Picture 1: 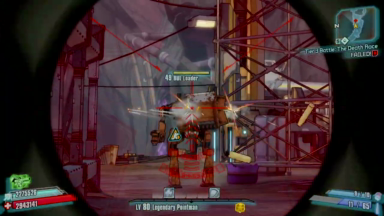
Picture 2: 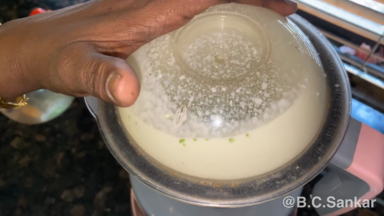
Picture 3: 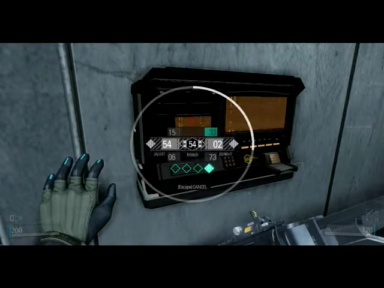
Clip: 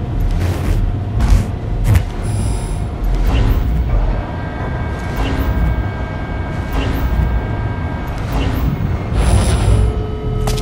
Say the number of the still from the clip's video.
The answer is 3